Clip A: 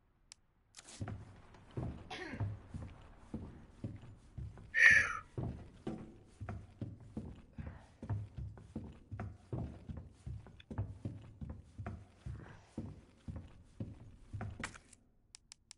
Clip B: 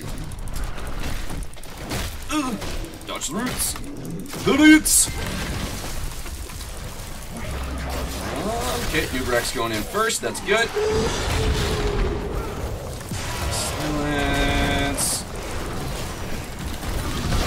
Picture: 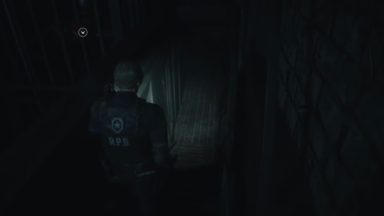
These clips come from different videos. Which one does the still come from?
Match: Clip A